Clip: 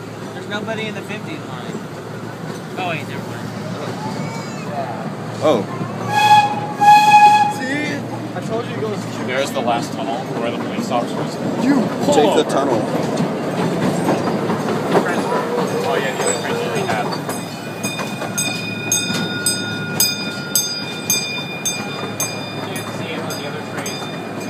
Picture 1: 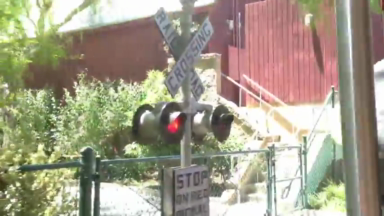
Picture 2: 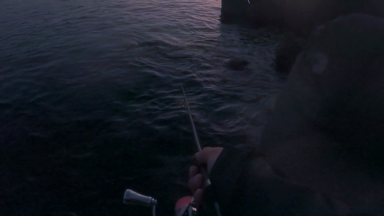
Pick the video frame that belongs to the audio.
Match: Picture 1